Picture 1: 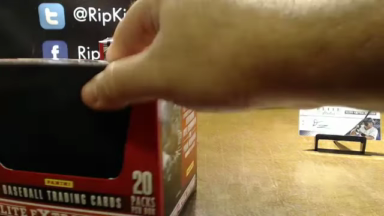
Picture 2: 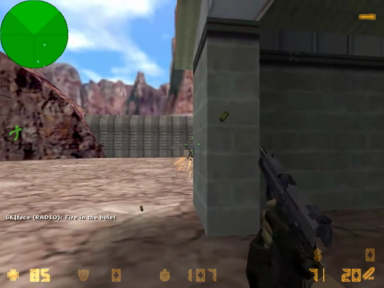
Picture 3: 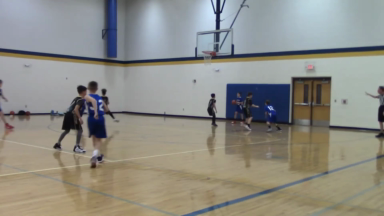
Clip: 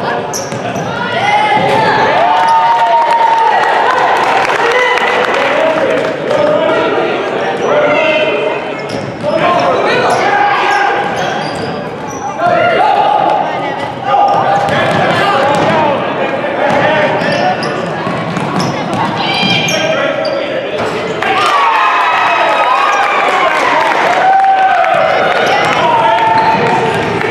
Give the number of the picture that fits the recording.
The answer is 3